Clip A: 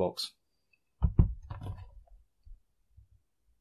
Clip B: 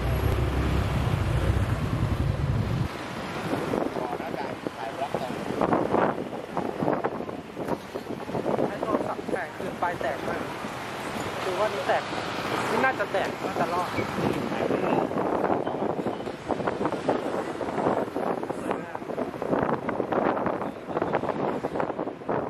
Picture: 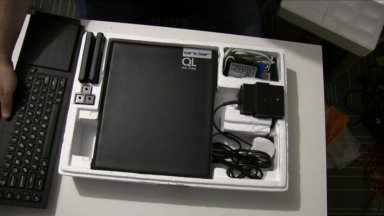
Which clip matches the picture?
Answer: A